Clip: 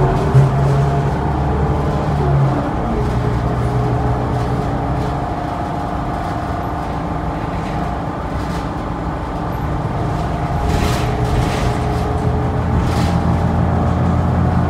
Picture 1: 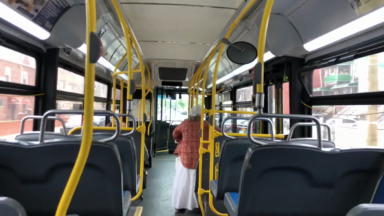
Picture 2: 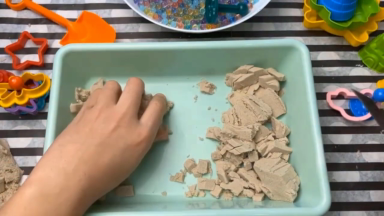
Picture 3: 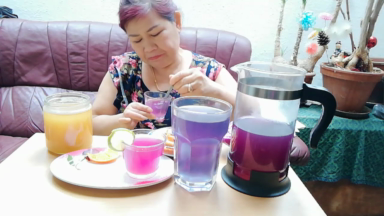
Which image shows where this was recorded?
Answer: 1